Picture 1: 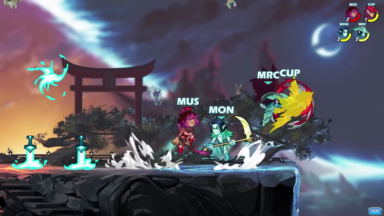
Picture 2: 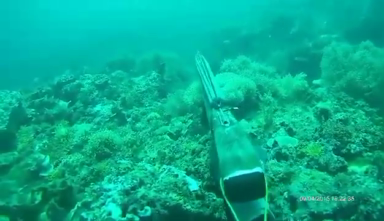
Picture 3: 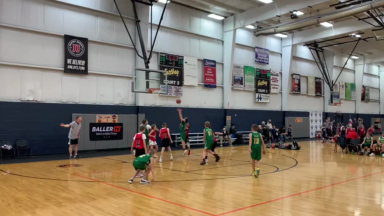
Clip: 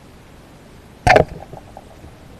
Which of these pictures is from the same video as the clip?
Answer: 2